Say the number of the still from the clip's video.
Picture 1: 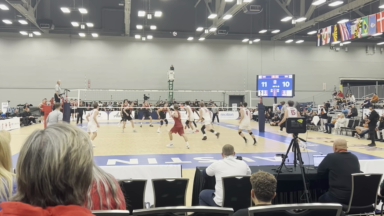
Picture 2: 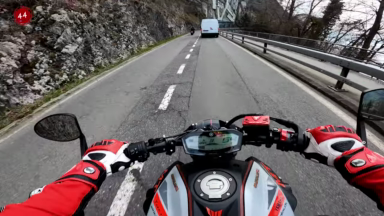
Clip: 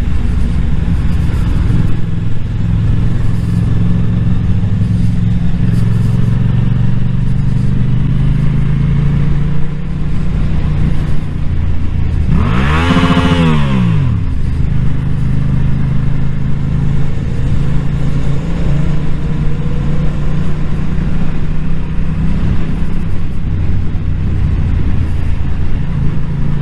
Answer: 2